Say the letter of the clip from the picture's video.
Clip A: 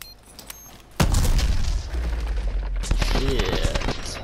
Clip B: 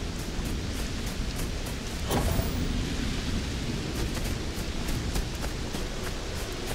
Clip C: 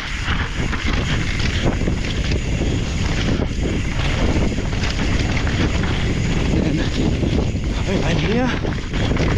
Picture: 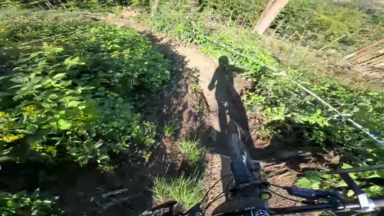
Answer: C